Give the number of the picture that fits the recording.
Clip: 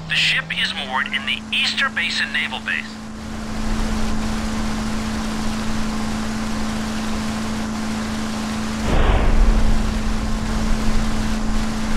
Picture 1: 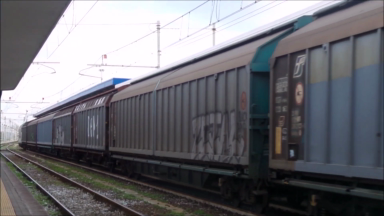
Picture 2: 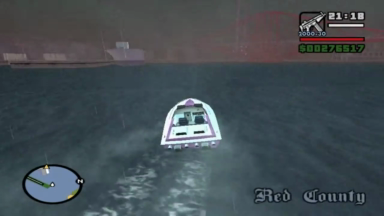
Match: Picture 2